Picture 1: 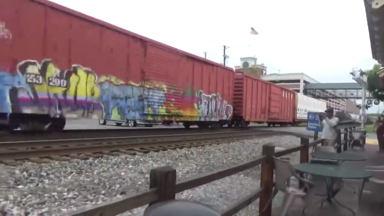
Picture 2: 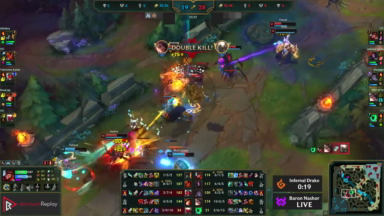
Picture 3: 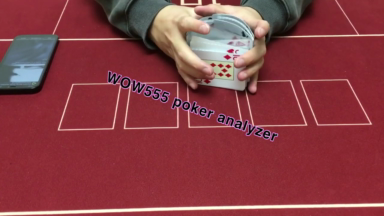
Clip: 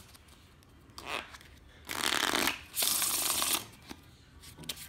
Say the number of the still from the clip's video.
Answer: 3